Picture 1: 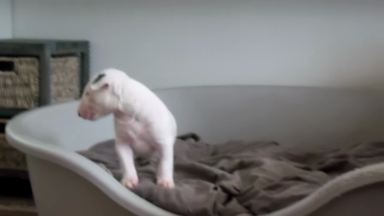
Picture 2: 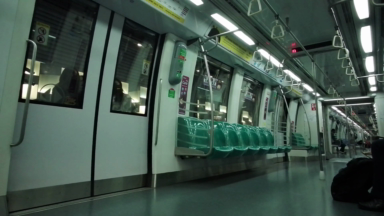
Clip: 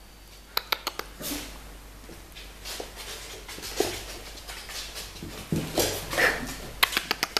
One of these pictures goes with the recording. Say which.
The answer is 1